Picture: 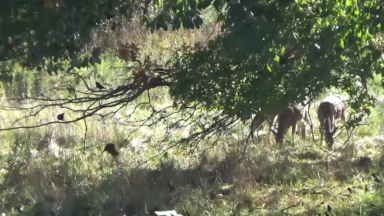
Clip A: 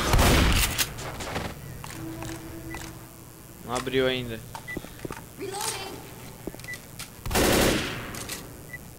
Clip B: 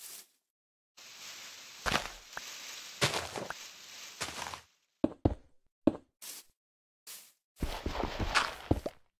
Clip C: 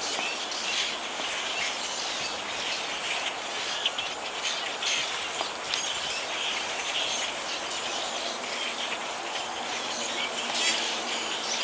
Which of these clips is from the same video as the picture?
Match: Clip C